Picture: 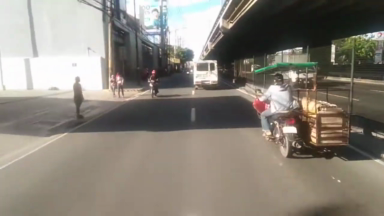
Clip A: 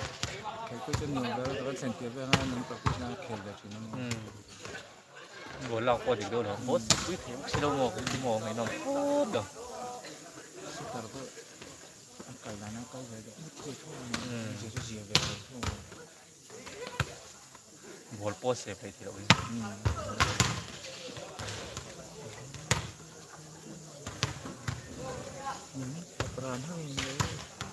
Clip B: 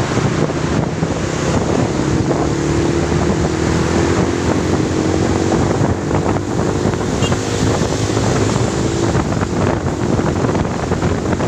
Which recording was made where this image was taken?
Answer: B